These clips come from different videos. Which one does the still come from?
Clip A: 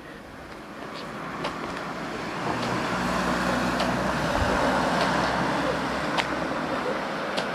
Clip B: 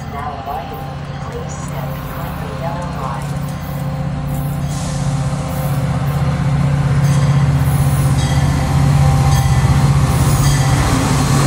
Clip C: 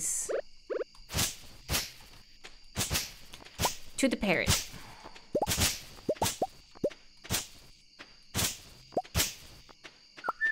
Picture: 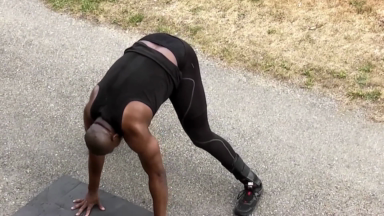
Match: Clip A